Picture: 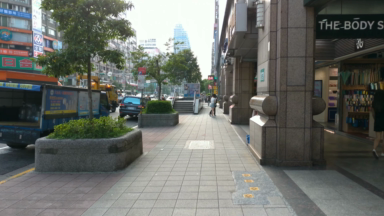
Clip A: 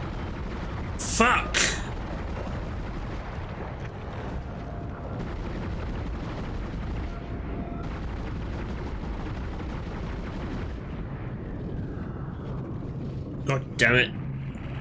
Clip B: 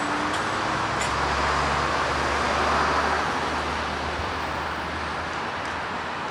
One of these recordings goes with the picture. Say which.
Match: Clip B